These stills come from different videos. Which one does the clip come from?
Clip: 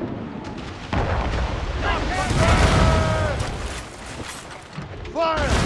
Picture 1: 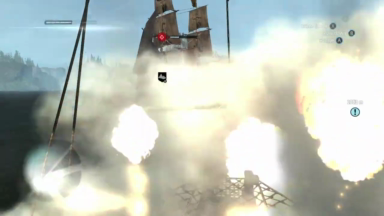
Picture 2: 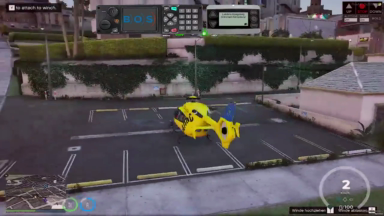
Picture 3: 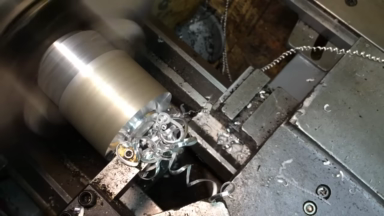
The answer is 1